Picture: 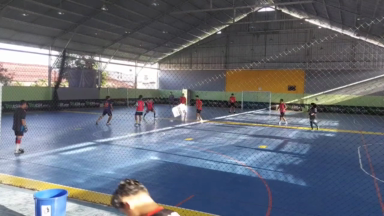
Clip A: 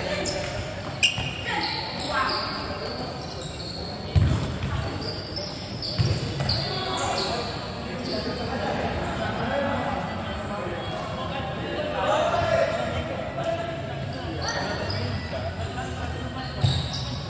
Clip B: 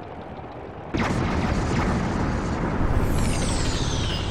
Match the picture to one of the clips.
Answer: A